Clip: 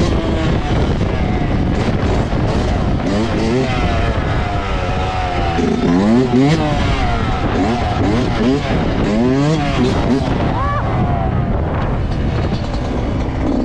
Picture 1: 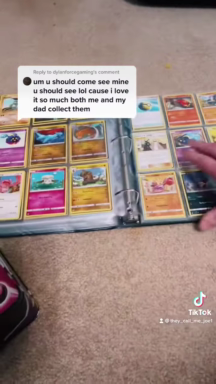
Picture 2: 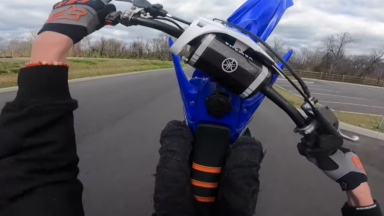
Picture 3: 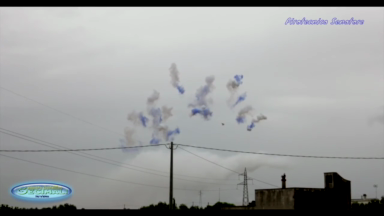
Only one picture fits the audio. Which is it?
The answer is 2